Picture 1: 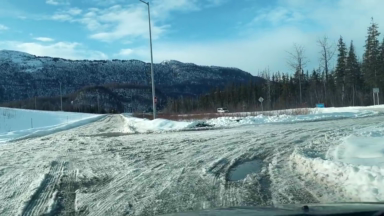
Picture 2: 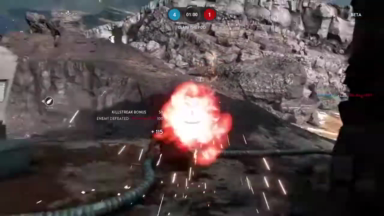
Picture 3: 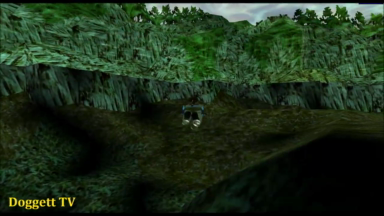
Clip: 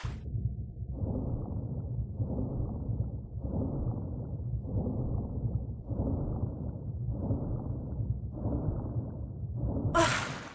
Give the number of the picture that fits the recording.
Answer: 3